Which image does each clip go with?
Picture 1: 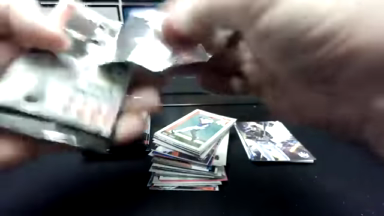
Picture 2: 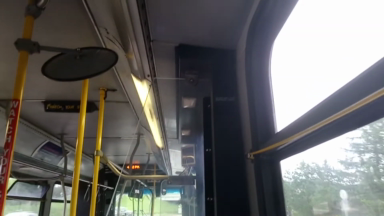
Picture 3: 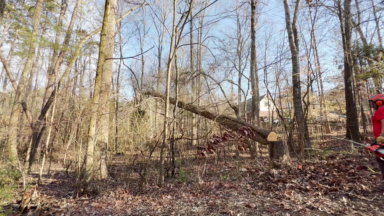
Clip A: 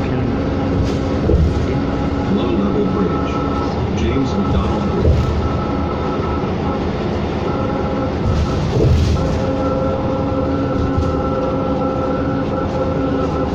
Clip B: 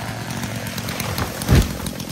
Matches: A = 2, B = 3